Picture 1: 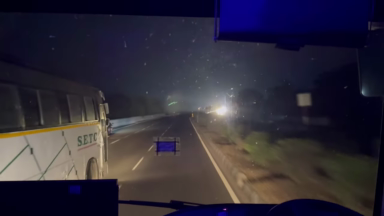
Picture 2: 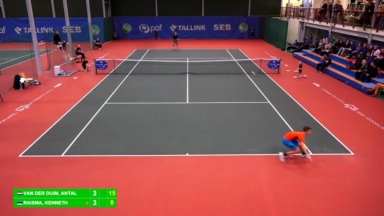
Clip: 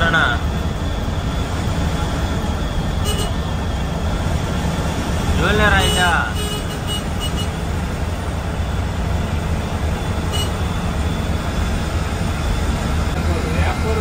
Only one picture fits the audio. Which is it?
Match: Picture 1